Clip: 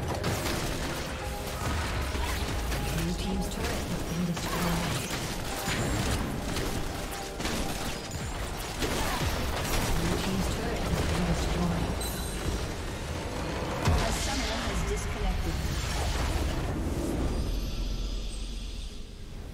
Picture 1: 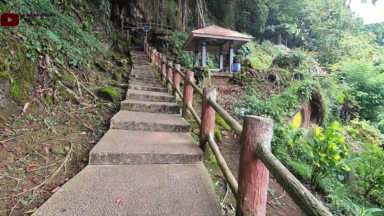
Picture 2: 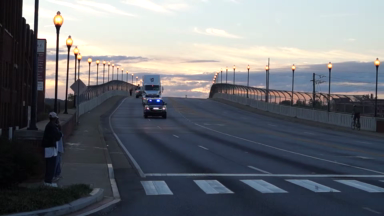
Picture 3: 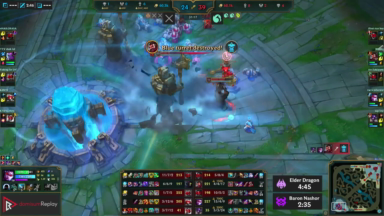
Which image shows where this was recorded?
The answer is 3